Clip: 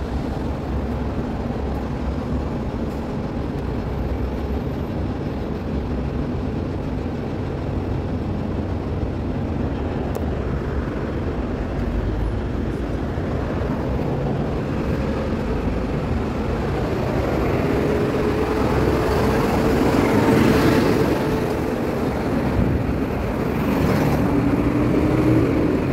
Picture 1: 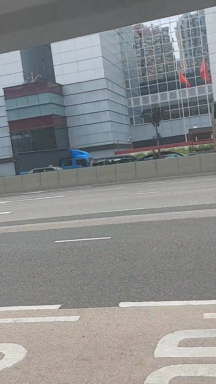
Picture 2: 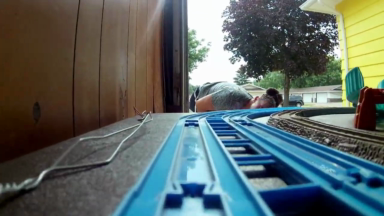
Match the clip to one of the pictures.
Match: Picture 1